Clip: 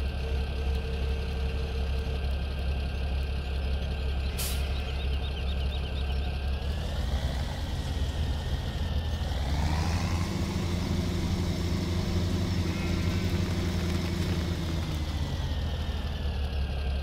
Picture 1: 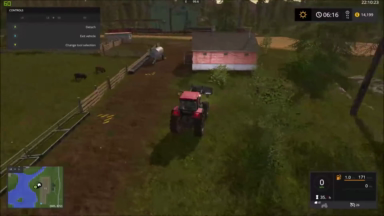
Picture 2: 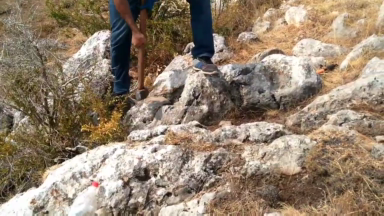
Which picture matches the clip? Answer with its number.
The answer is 1